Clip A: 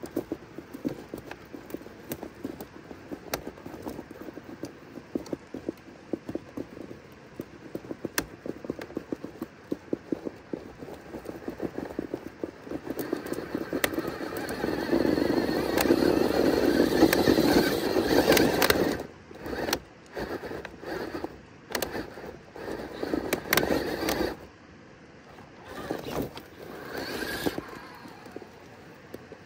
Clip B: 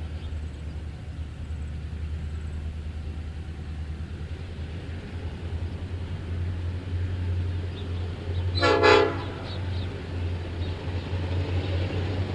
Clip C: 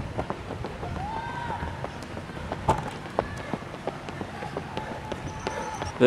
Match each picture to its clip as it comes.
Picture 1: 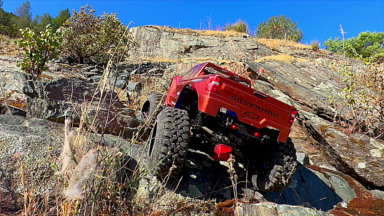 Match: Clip A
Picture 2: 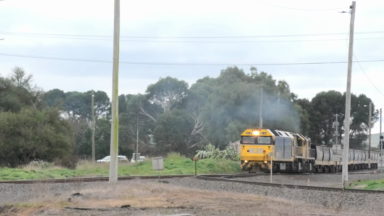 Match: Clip B